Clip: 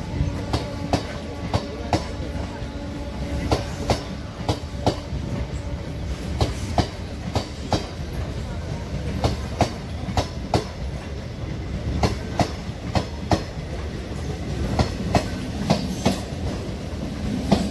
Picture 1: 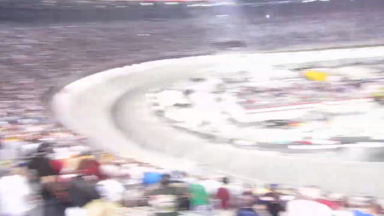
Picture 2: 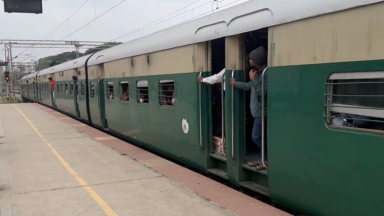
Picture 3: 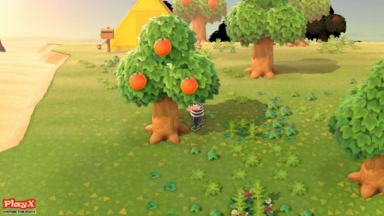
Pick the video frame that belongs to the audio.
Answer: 2